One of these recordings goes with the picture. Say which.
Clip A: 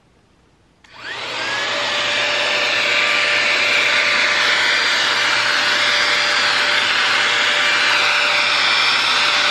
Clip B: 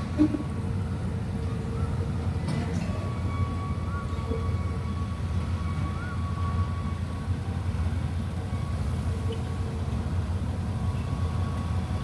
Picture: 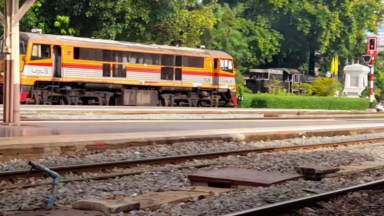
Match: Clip B